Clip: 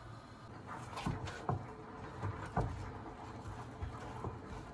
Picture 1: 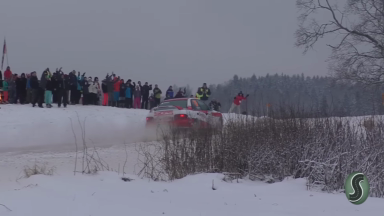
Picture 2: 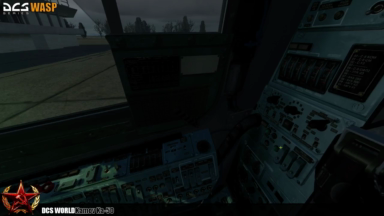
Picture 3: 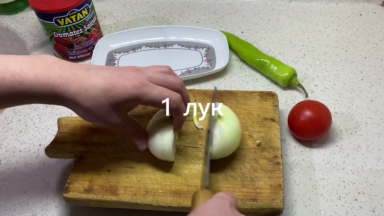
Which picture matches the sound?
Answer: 3